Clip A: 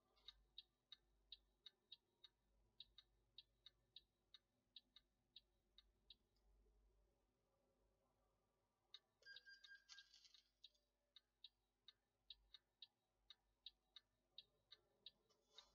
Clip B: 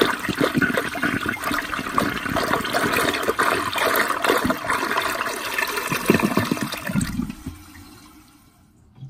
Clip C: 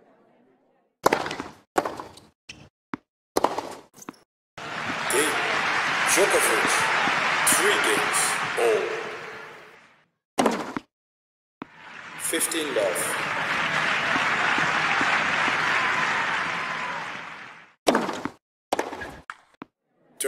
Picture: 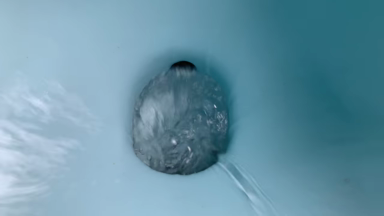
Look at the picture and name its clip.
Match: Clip B